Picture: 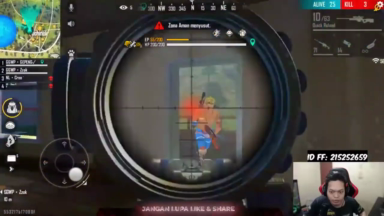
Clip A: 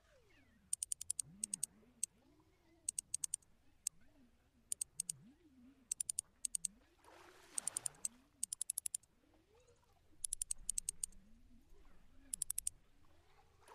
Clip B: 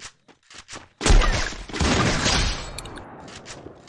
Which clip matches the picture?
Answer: B